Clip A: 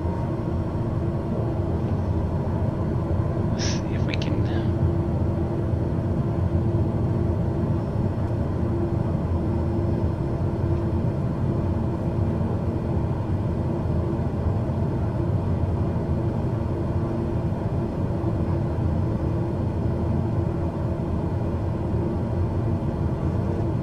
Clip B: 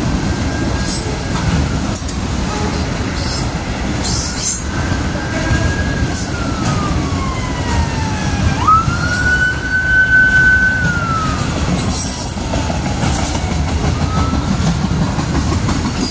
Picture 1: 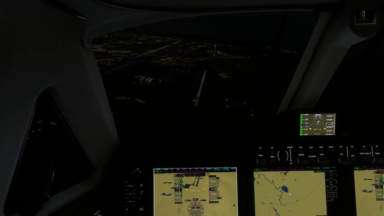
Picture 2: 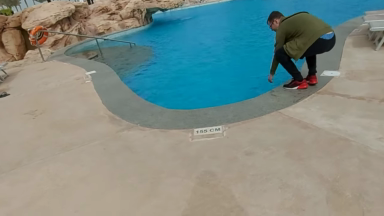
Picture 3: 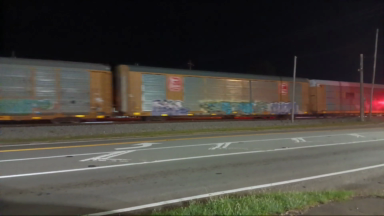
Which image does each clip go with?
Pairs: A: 1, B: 3